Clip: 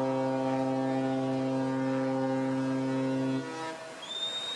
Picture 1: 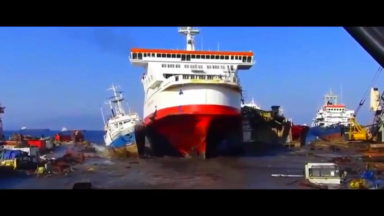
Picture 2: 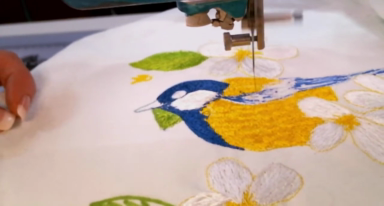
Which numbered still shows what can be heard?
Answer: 1